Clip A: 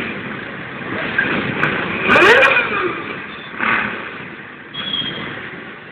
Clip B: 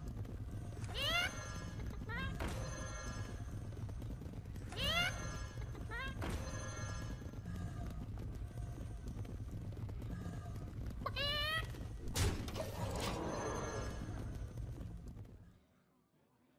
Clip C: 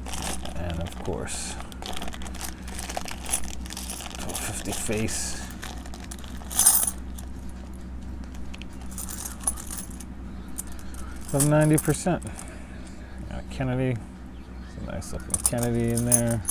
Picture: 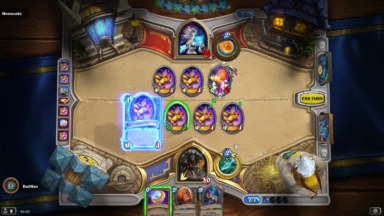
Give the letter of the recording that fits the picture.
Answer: B